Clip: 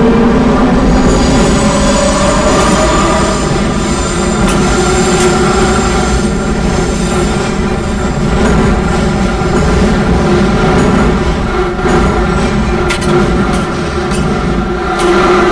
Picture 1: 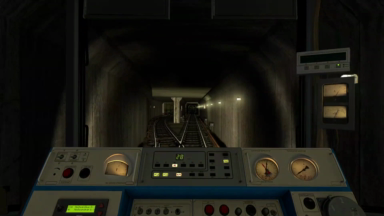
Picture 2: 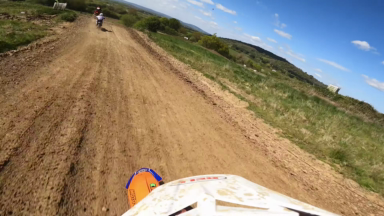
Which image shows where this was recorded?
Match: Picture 1